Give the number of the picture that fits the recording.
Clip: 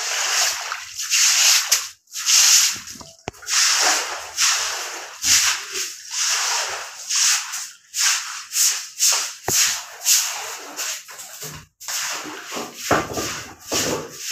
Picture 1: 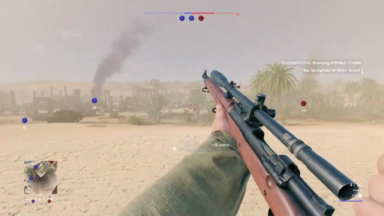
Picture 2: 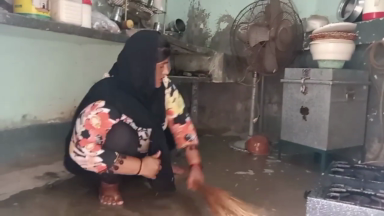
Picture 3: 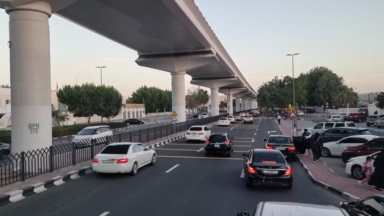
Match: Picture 2